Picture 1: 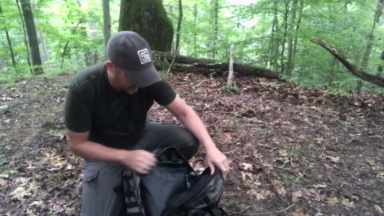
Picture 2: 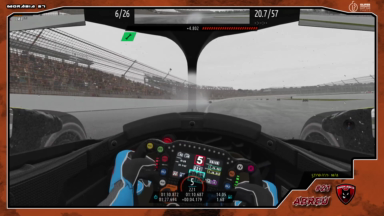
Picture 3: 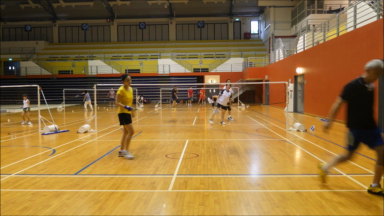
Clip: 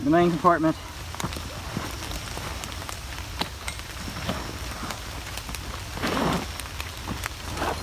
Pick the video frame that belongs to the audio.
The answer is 1